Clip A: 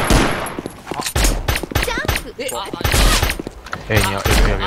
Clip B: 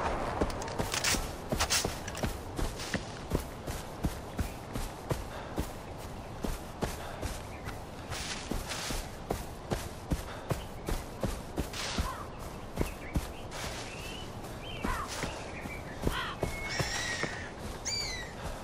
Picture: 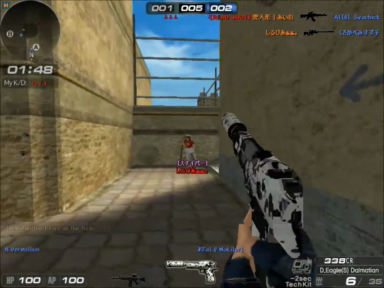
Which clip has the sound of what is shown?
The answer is A